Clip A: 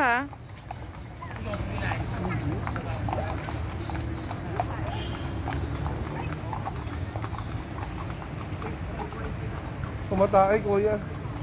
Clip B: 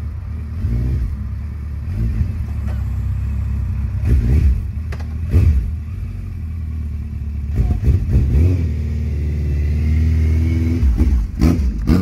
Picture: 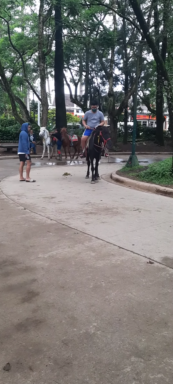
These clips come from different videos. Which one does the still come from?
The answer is A